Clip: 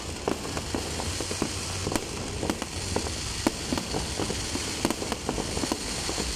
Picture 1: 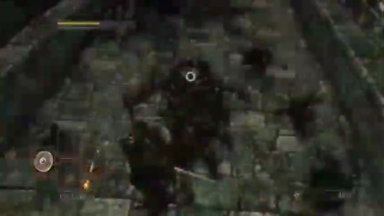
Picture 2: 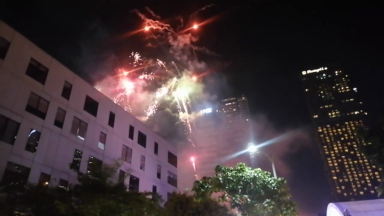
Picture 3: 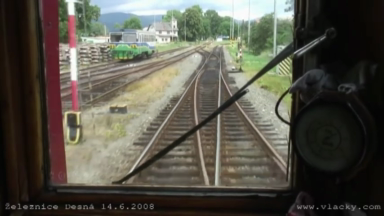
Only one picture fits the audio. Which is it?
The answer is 2